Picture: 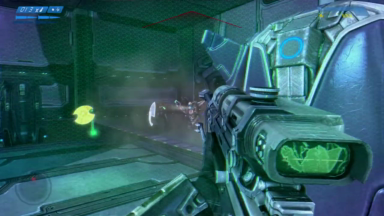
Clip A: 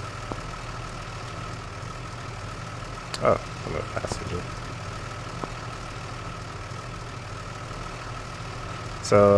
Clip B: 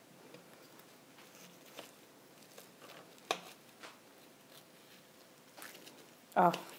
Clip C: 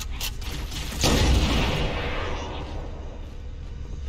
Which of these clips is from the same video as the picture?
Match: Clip C